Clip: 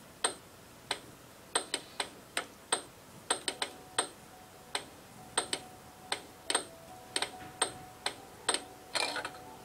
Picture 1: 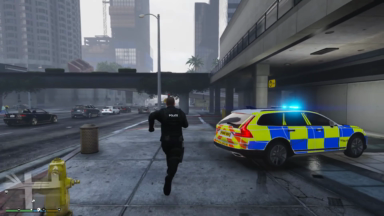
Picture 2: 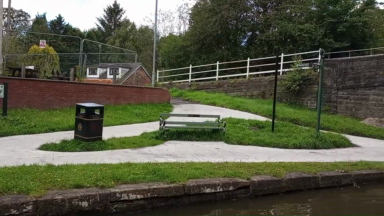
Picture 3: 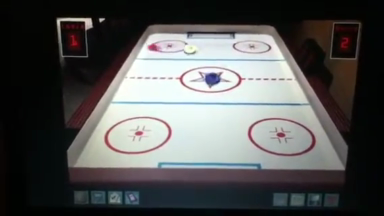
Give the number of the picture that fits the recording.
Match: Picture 3